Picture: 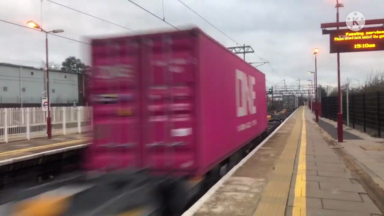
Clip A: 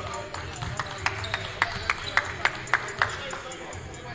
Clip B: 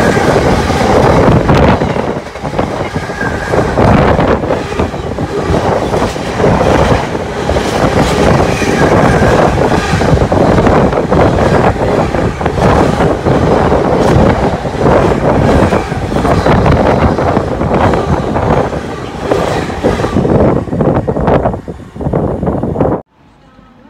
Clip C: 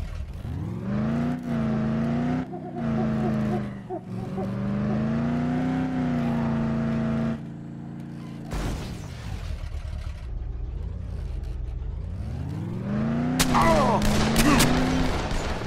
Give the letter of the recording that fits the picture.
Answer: B